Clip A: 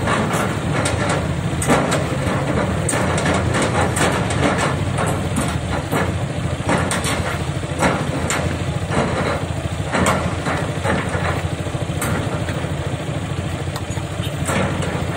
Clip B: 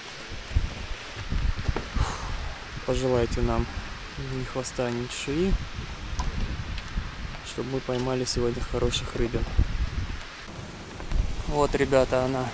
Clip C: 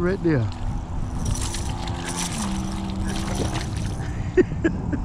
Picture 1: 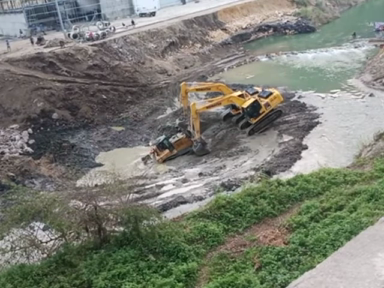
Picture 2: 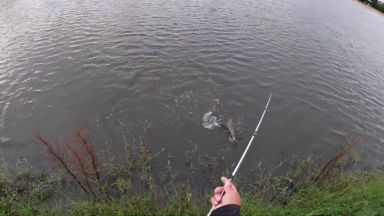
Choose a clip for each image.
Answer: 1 A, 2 C